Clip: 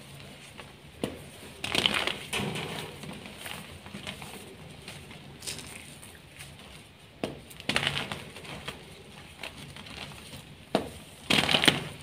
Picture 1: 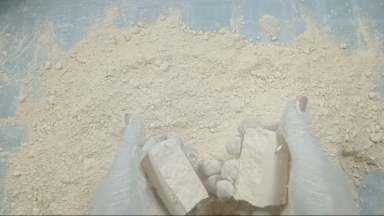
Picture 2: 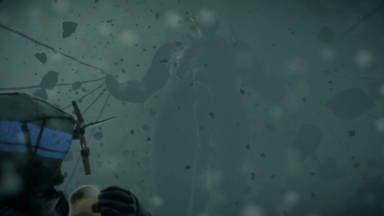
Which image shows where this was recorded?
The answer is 1